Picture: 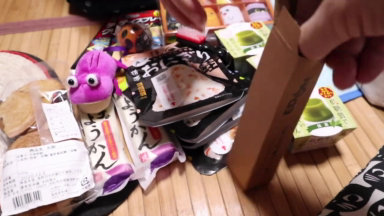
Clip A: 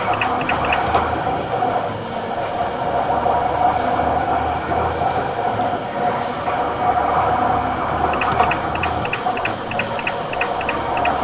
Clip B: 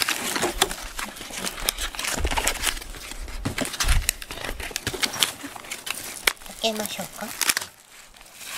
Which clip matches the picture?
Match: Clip B